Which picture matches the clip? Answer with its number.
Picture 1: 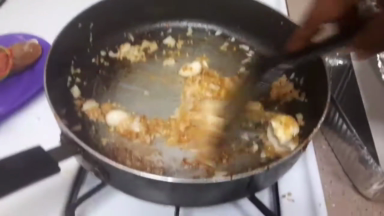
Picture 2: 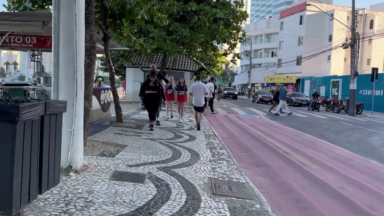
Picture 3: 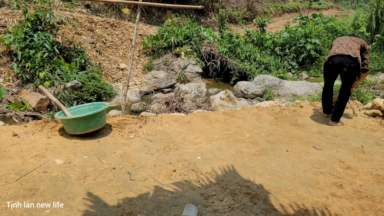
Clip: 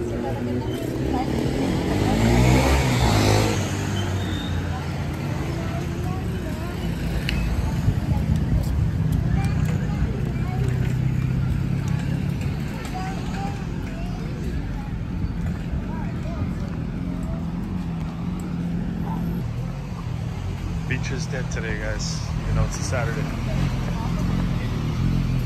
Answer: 2